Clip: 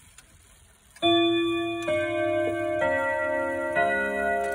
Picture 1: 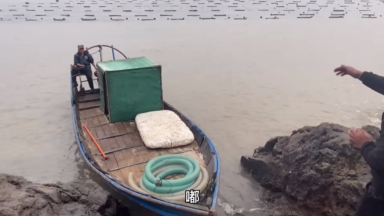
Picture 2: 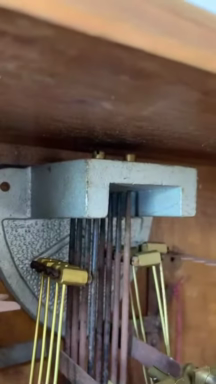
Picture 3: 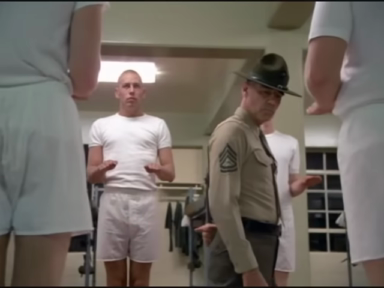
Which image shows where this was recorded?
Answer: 2